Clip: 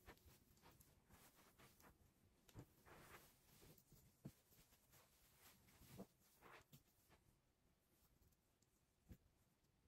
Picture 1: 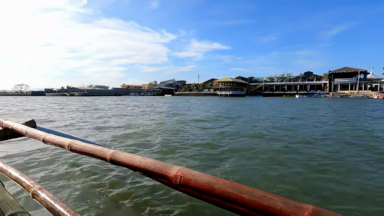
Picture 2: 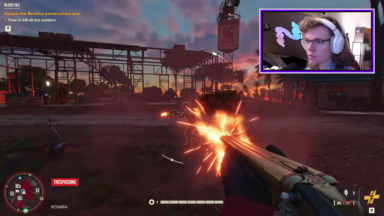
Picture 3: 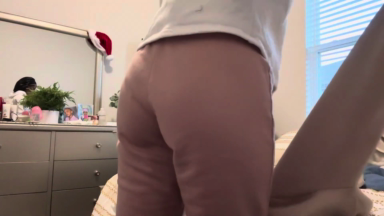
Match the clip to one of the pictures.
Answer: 3